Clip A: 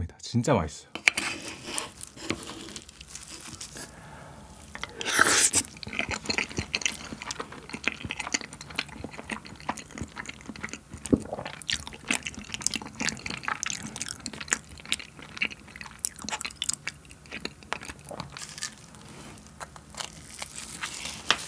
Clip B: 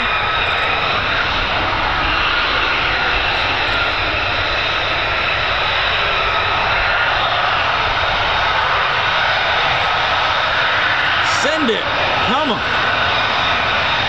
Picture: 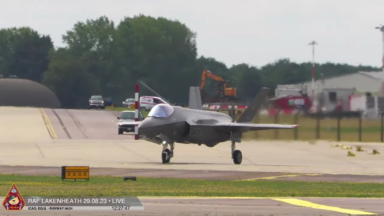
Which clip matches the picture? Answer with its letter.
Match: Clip B